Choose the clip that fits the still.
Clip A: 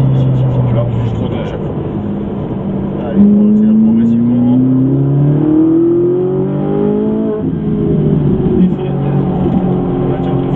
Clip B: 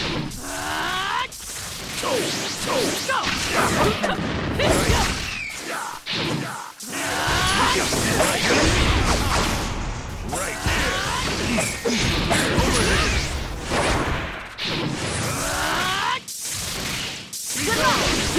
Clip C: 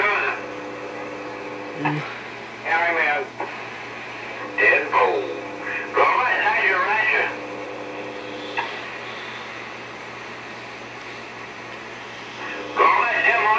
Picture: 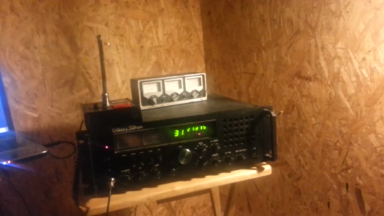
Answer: C